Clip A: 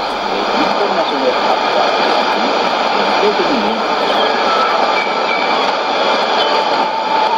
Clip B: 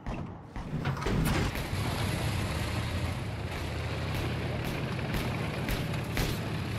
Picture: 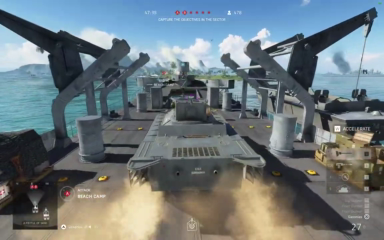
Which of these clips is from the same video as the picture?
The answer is B